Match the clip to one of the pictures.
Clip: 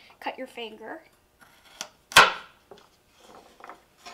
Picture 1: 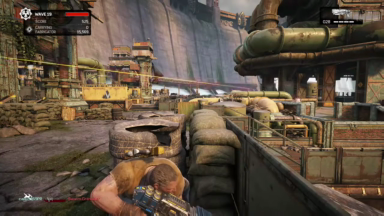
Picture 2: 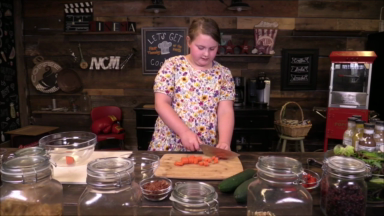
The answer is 2